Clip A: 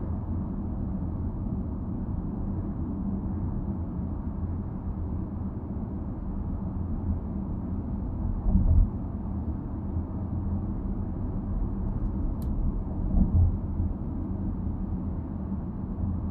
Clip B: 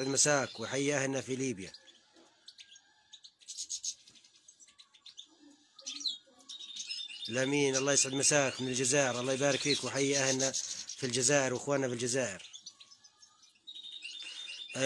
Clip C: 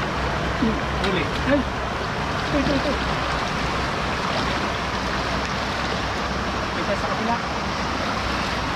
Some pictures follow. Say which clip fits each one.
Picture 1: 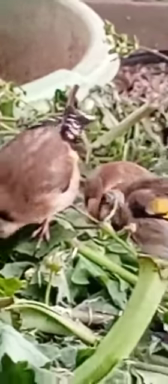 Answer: B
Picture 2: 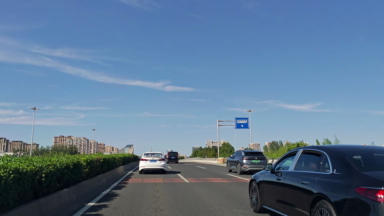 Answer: A